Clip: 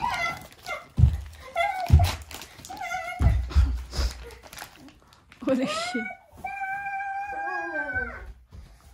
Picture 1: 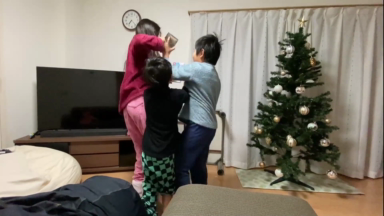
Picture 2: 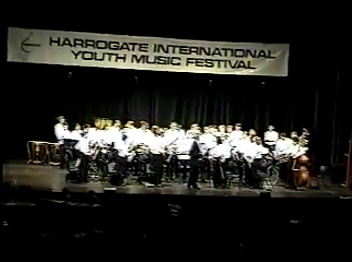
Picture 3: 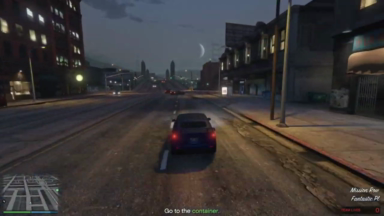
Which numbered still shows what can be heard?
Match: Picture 1